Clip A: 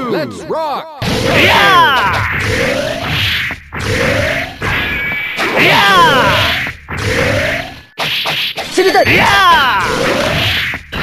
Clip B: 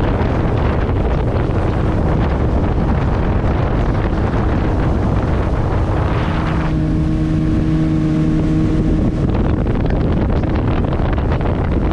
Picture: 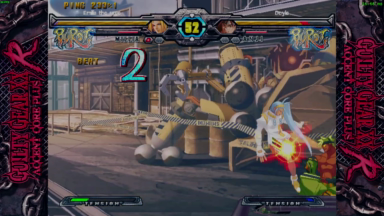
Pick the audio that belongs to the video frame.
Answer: A